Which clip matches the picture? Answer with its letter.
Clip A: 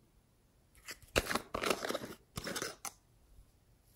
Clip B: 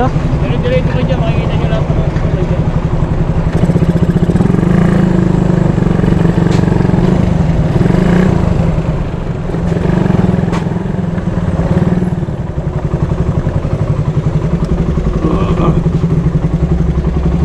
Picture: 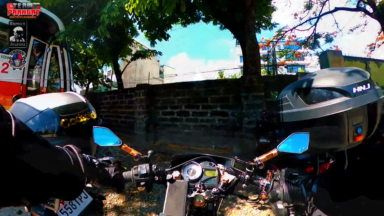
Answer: B